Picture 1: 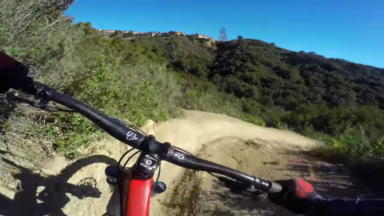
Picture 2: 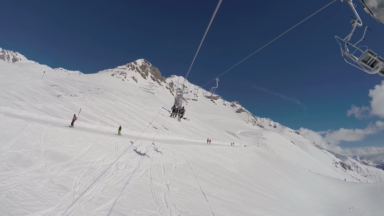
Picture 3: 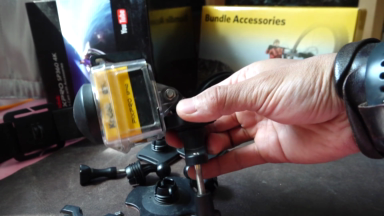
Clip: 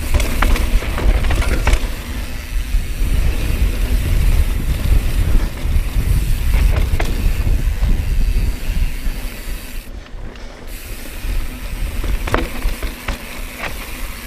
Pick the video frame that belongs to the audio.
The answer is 1